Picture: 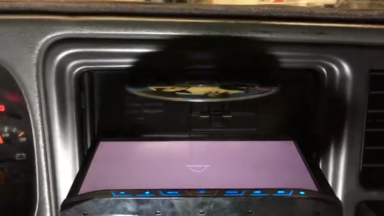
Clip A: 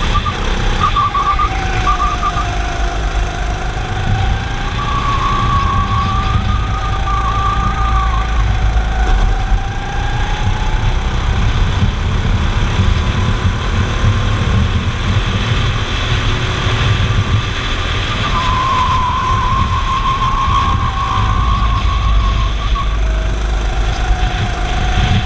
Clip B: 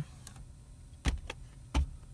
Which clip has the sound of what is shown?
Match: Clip B